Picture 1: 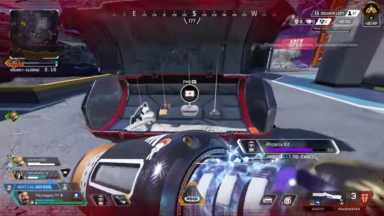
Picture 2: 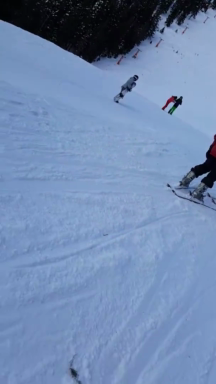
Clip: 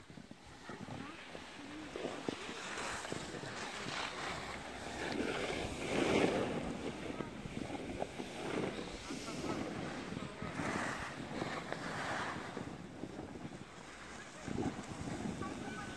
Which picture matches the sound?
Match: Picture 2